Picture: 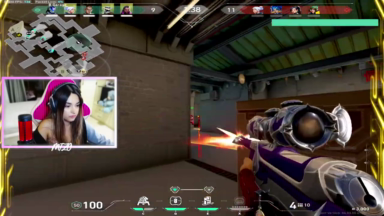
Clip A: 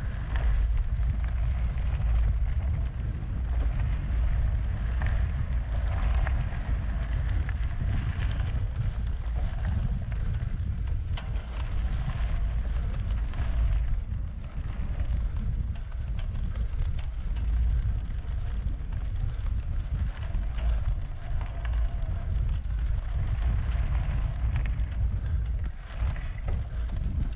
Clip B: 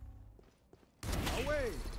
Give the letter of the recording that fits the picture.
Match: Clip B